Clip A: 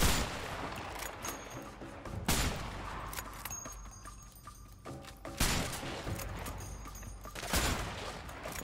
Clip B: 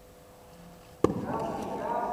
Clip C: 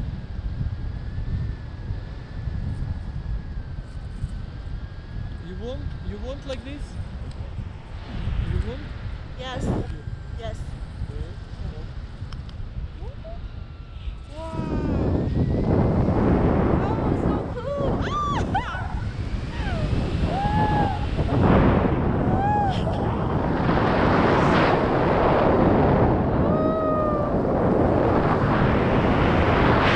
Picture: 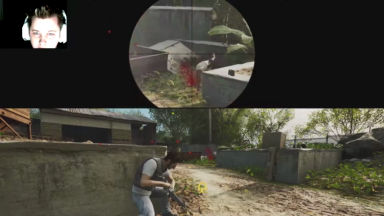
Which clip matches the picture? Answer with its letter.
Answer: A